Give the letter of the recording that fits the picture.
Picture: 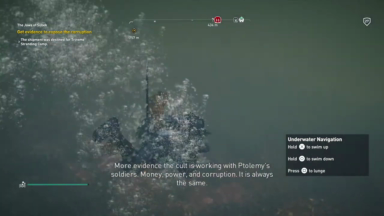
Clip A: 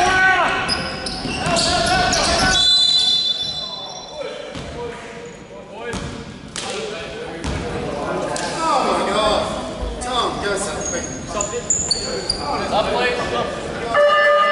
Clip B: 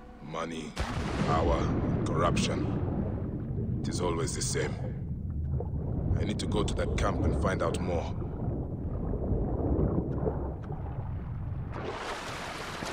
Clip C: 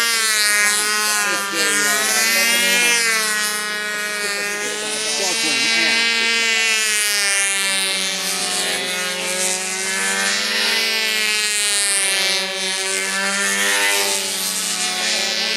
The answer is B